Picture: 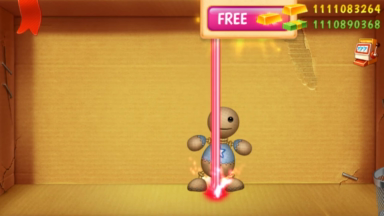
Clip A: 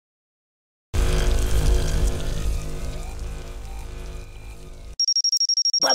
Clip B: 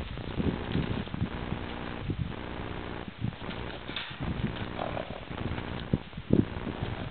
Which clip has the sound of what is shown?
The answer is A